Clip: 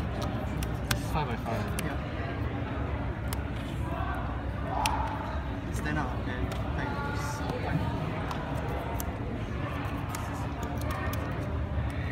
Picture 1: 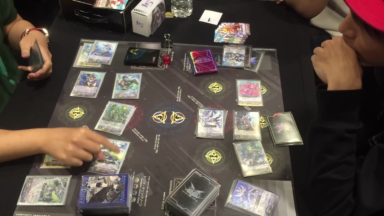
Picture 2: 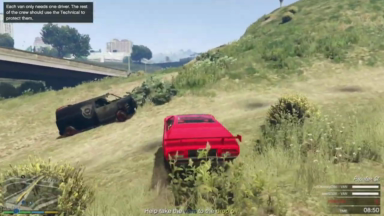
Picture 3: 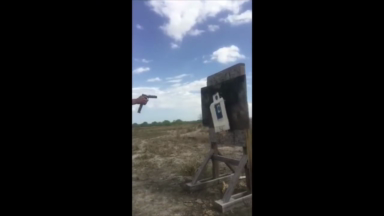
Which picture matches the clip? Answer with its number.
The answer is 1